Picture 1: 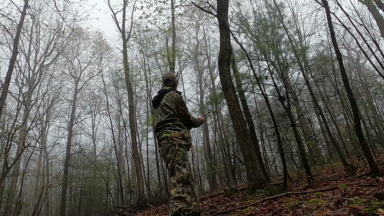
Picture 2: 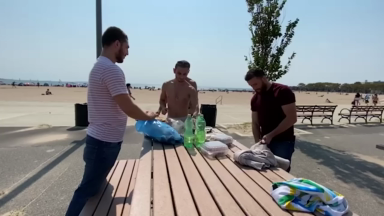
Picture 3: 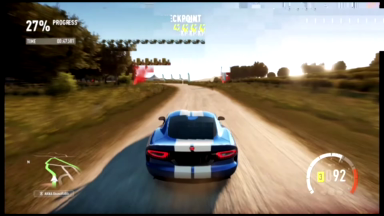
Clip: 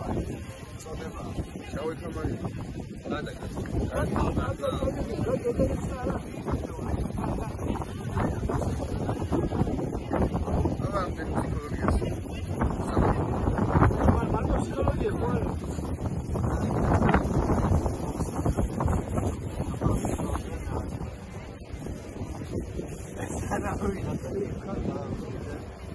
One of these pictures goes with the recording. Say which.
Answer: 2